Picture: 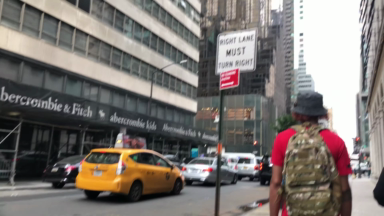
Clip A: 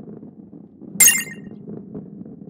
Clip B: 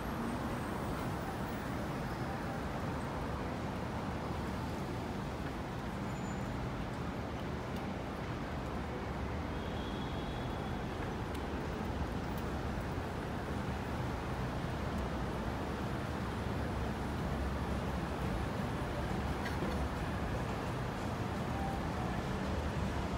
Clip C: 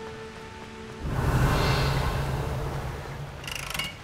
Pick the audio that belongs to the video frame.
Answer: B